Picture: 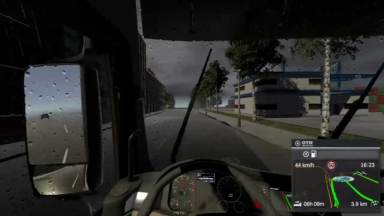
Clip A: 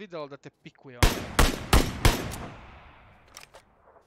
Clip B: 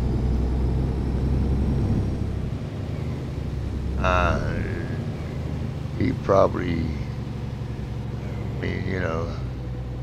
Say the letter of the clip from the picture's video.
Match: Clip B